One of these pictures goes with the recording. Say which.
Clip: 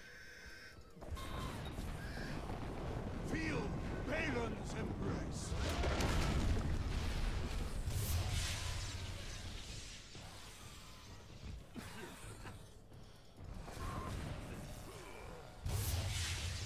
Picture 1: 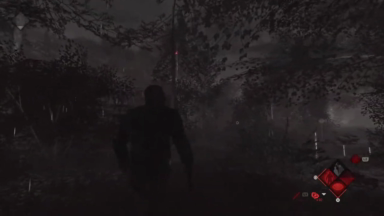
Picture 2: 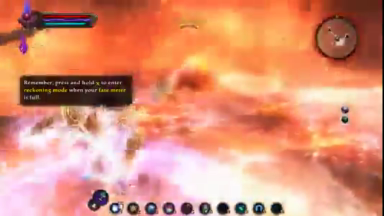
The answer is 2